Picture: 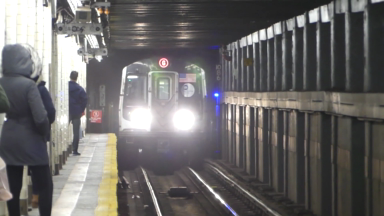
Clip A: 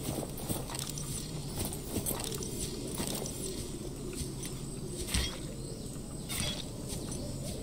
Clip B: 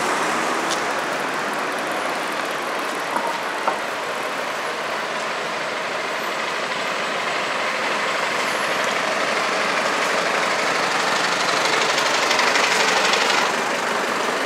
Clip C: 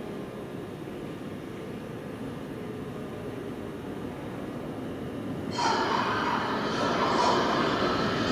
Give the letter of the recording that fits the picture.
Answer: C